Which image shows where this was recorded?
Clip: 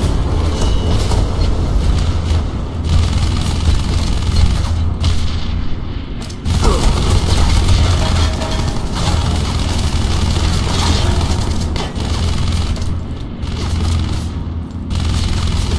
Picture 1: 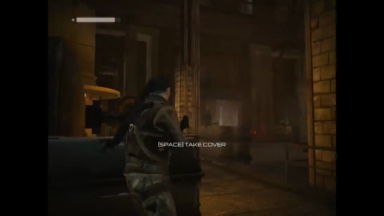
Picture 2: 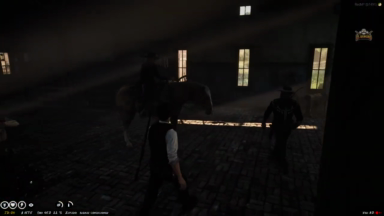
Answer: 1